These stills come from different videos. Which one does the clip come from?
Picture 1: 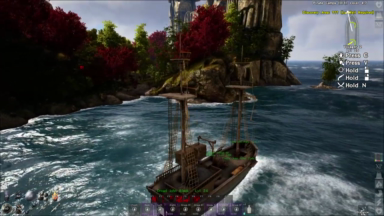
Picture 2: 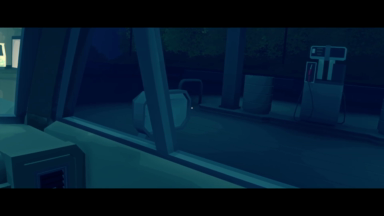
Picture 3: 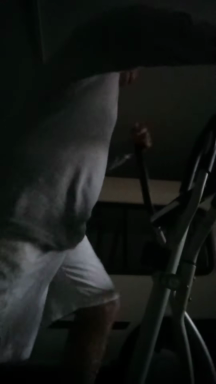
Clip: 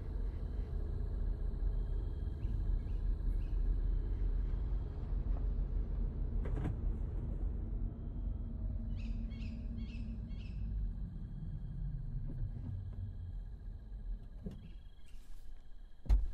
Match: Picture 2